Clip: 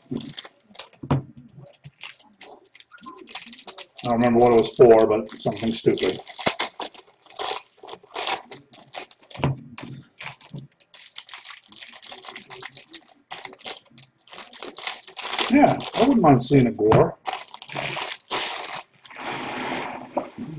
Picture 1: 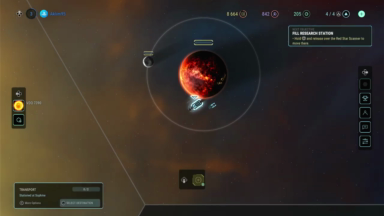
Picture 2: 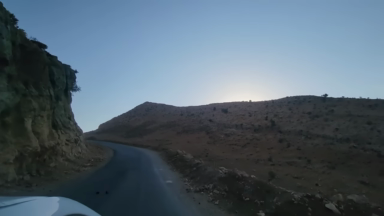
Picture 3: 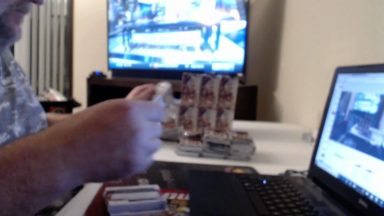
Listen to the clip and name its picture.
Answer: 3